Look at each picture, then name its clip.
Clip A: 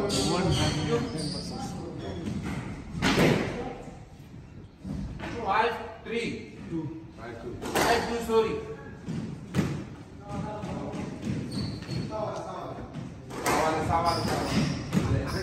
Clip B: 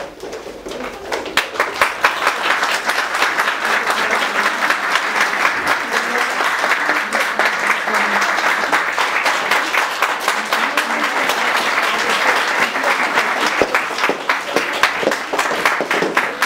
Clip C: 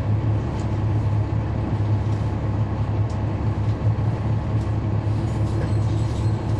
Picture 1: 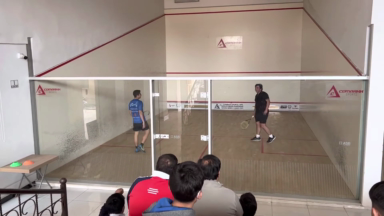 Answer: A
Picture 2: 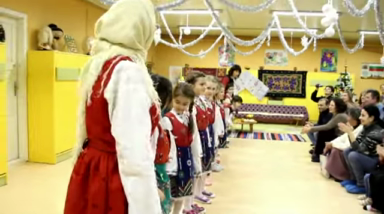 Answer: B